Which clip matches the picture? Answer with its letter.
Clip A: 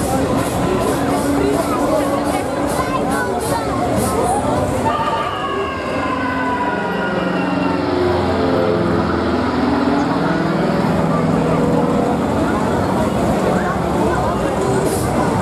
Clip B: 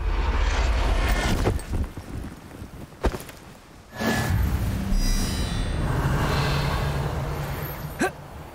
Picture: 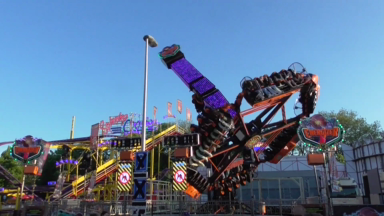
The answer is A